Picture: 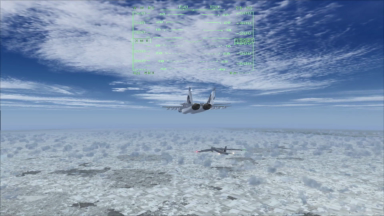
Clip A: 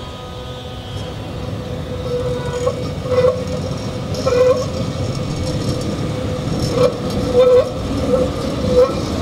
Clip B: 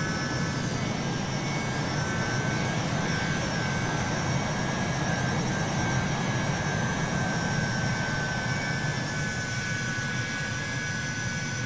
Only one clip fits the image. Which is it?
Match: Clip B